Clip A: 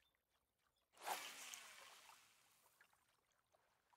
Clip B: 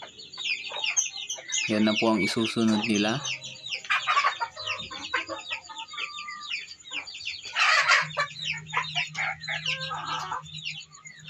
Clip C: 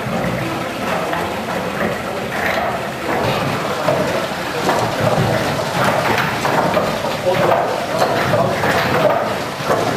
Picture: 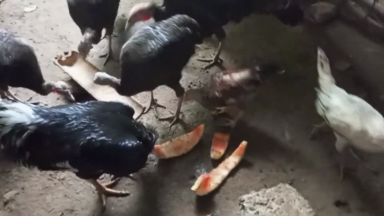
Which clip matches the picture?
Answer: B